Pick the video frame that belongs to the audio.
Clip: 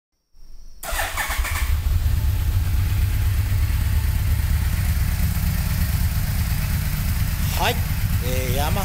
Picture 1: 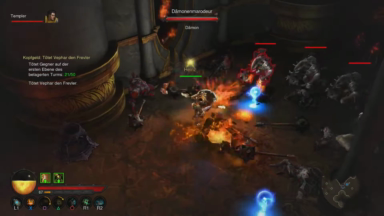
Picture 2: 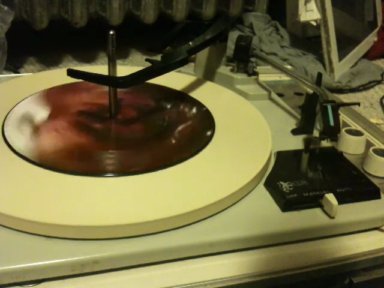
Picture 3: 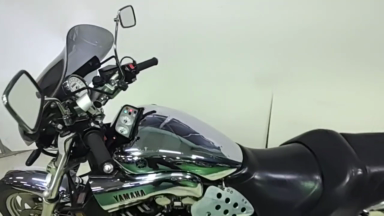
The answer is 3